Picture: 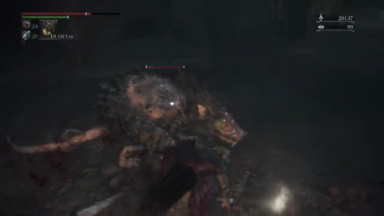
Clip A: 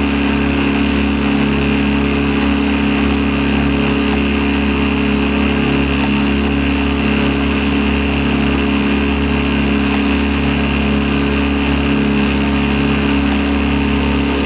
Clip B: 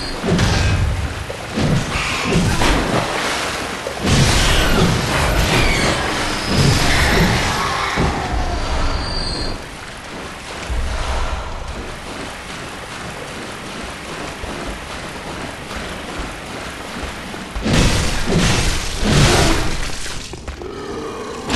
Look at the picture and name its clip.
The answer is B